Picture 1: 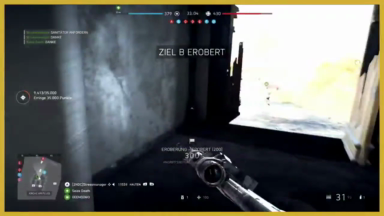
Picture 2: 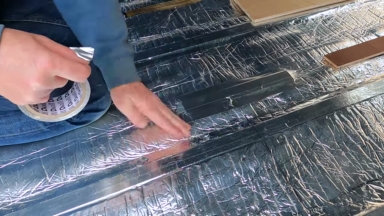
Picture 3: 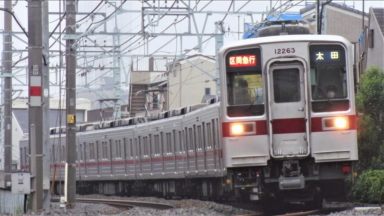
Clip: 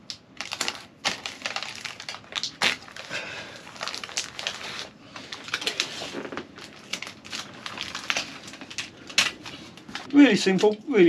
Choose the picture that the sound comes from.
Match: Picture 2